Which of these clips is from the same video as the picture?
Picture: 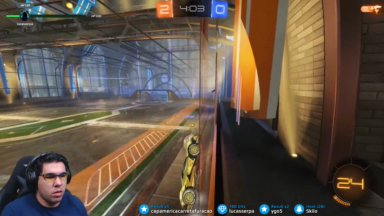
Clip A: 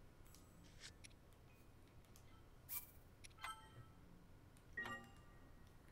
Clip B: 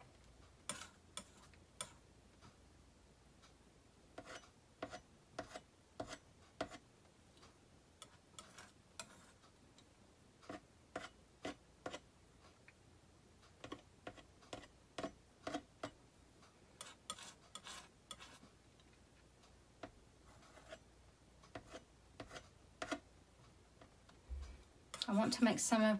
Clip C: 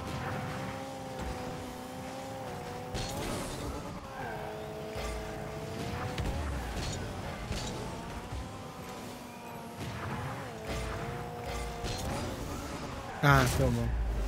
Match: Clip C